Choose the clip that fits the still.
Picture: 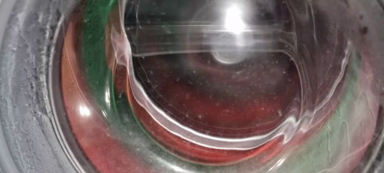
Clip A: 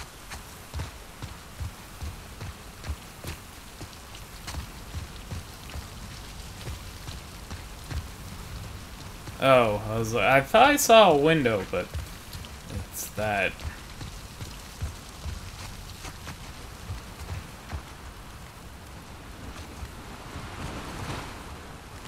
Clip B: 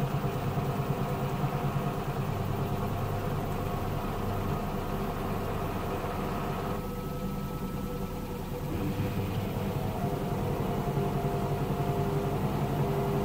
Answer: B